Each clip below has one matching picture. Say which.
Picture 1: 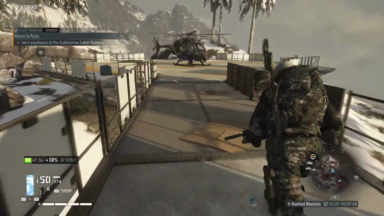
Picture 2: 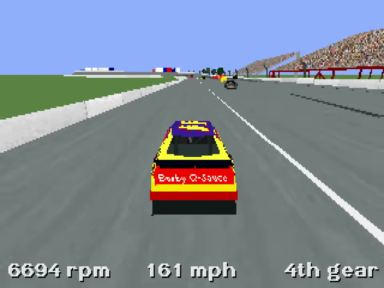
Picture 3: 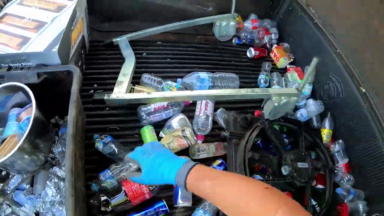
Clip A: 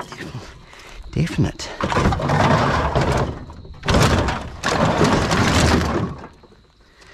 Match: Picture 3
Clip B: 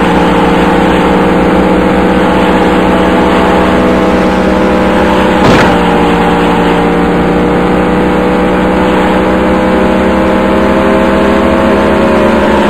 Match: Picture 2